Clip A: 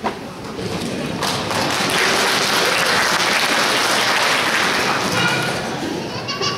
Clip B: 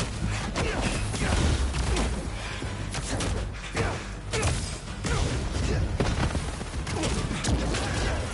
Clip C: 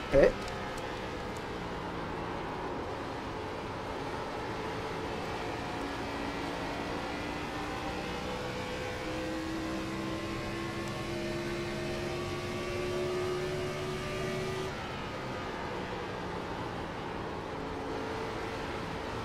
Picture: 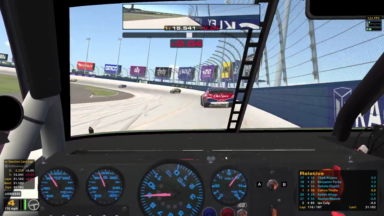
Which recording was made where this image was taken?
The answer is C